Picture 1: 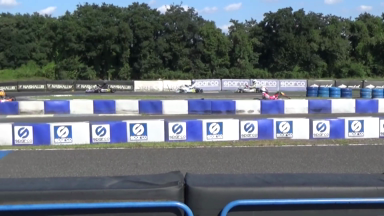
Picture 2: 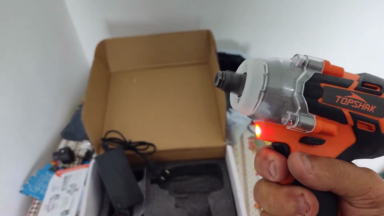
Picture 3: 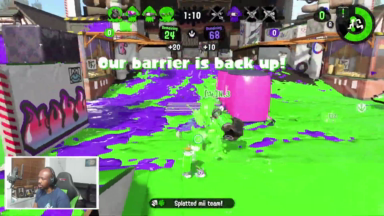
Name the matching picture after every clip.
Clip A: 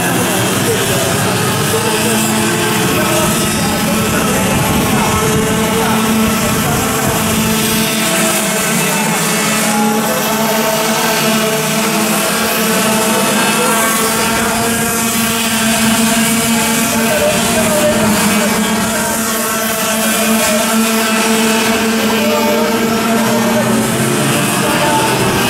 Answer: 1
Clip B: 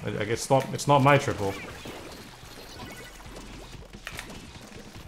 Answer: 3